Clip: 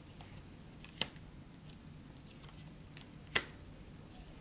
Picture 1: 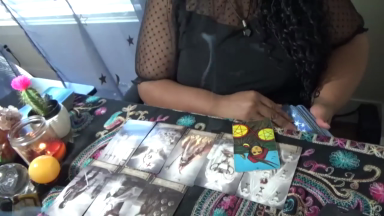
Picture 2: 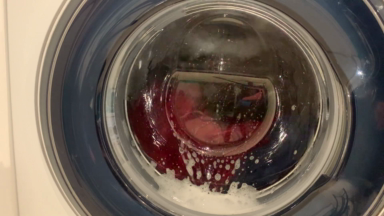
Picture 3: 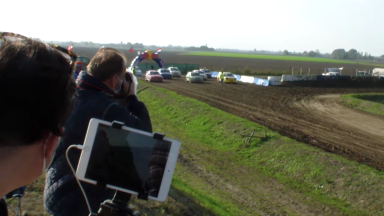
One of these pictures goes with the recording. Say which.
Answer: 1